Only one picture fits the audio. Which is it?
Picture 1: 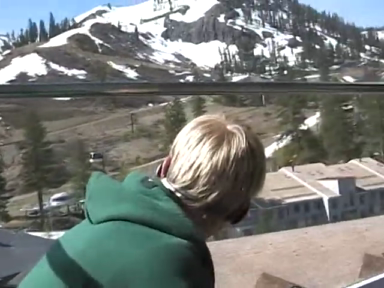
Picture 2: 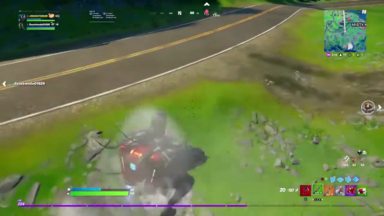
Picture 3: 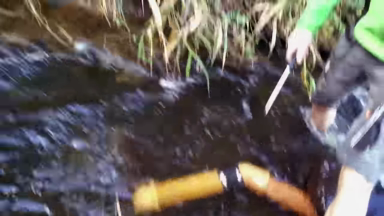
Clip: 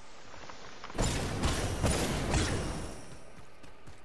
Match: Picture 2